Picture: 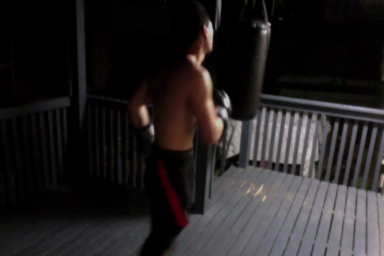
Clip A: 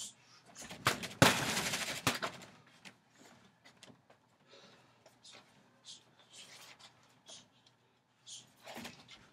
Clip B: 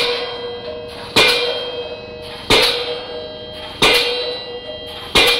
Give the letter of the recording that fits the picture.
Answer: A